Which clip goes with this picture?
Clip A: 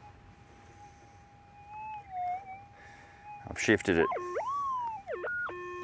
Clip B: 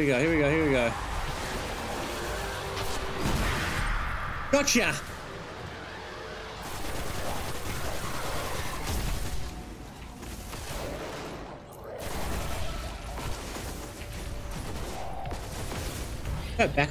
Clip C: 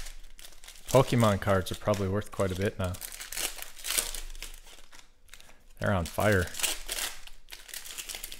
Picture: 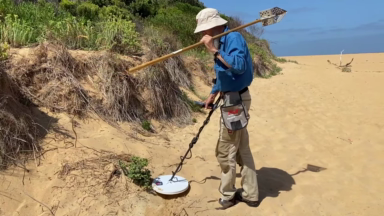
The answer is A